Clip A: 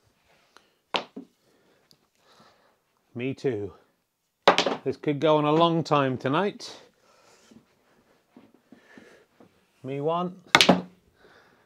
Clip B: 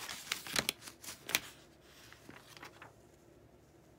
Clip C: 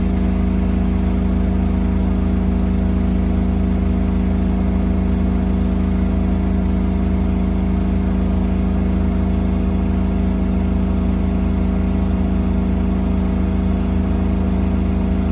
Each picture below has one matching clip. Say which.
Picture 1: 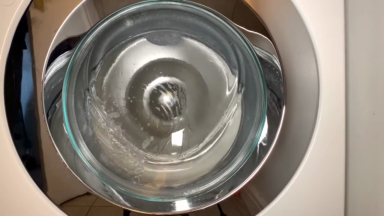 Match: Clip C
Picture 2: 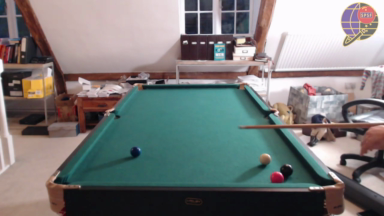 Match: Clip A